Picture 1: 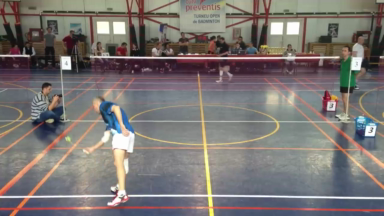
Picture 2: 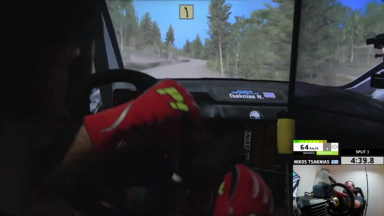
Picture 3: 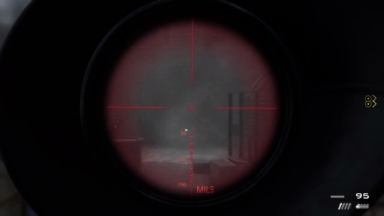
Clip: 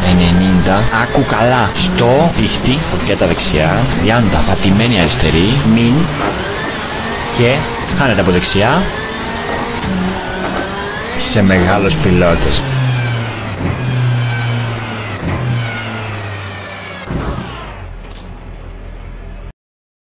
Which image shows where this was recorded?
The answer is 2